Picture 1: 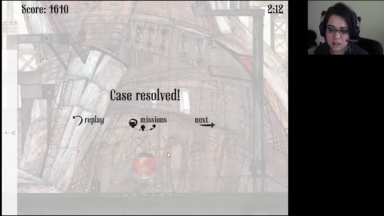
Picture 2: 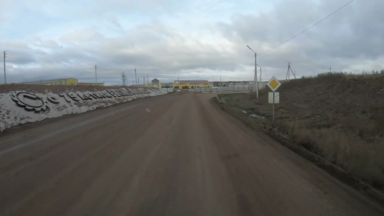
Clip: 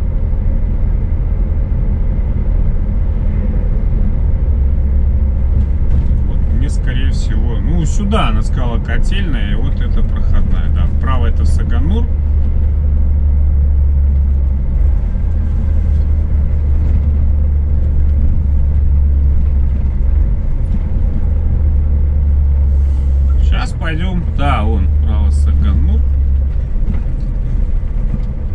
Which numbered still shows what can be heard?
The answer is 2